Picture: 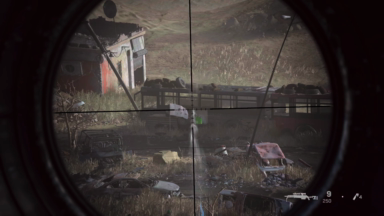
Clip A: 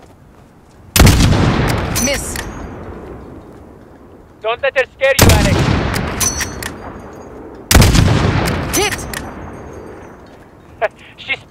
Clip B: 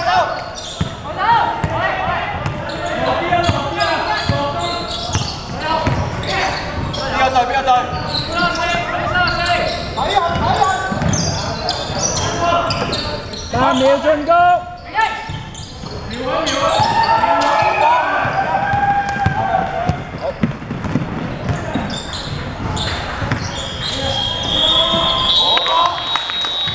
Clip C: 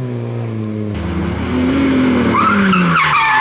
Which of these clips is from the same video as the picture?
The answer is A